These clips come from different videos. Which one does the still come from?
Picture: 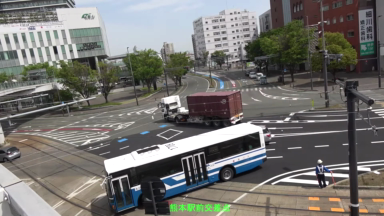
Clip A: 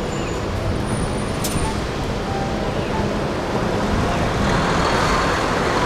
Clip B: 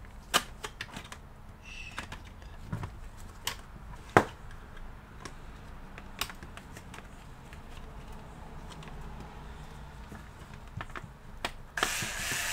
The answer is A